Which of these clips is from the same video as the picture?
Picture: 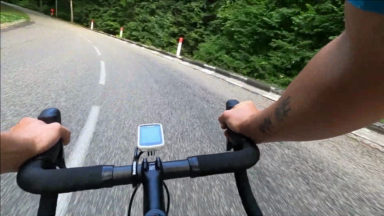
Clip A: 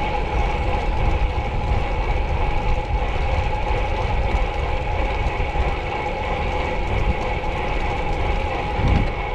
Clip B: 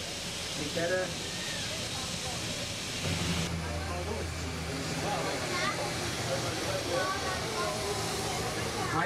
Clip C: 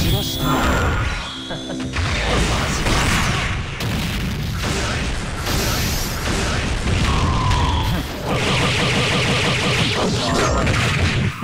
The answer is A